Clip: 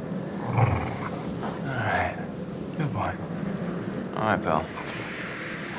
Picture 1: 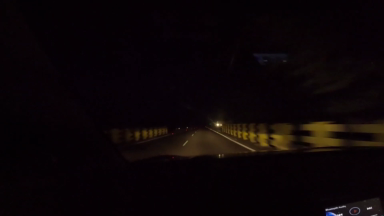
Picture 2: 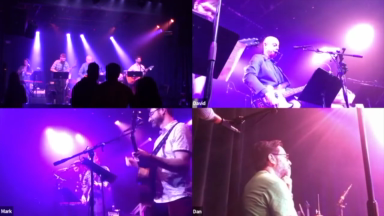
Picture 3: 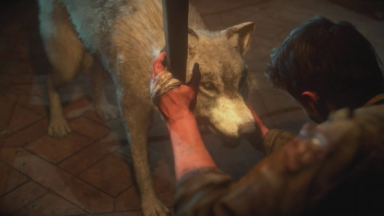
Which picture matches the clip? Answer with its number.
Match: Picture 3